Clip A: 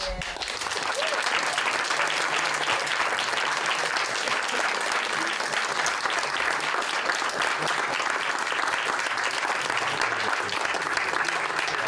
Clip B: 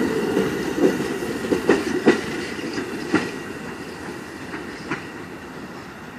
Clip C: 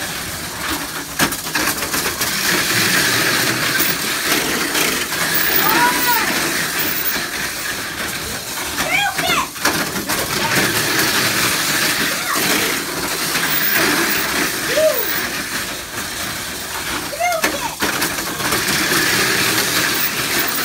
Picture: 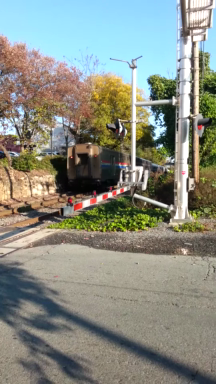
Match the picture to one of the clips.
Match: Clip B